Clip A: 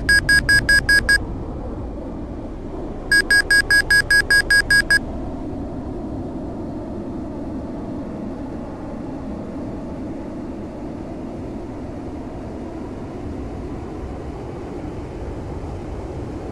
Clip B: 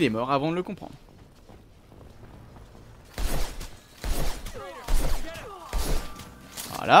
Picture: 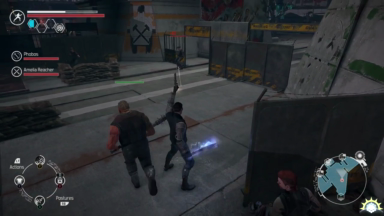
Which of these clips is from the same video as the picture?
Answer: B